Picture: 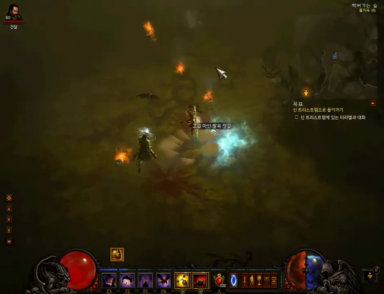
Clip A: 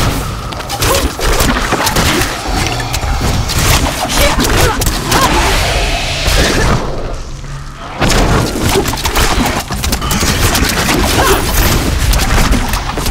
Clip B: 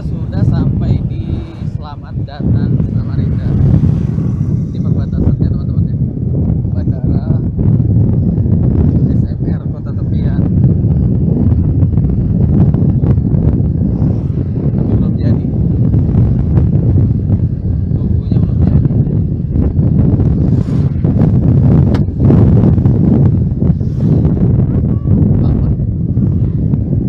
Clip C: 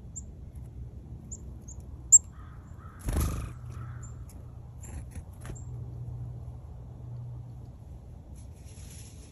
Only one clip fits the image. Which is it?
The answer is A